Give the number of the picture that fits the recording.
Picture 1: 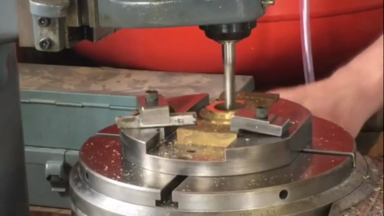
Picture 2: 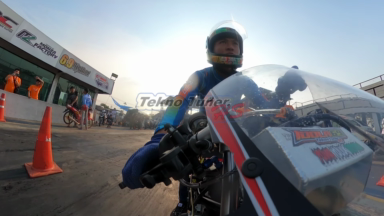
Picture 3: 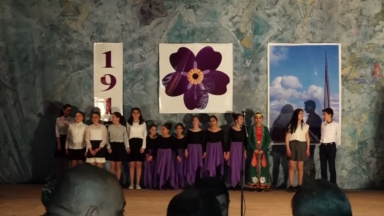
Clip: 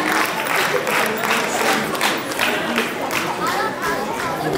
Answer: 3